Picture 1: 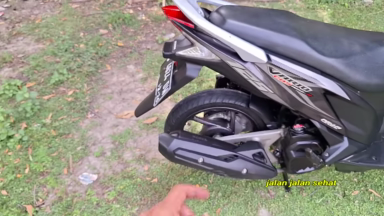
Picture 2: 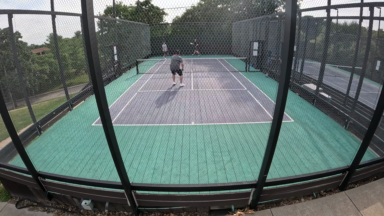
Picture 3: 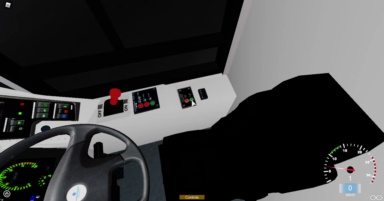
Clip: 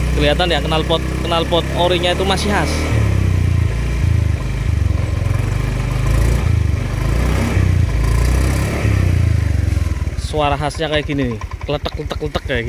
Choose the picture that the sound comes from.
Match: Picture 1